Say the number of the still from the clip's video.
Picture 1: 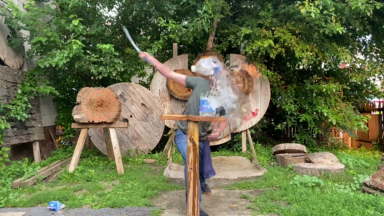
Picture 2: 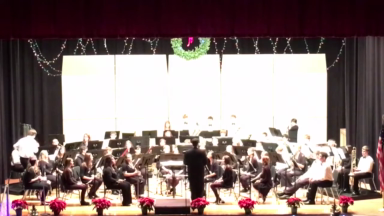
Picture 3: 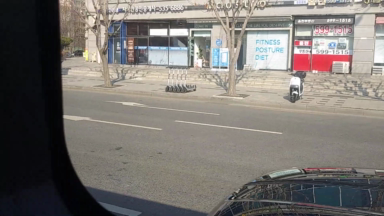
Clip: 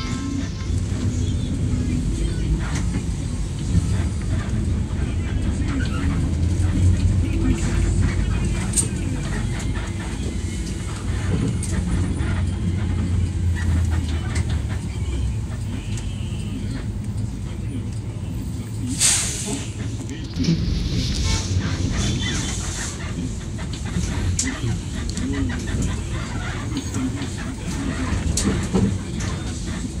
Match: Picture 3